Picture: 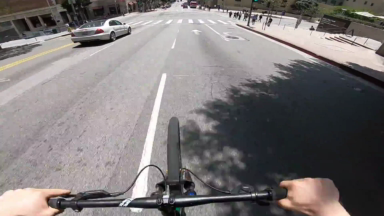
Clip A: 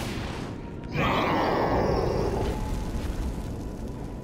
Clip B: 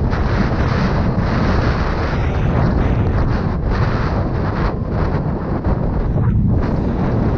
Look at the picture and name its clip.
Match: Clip B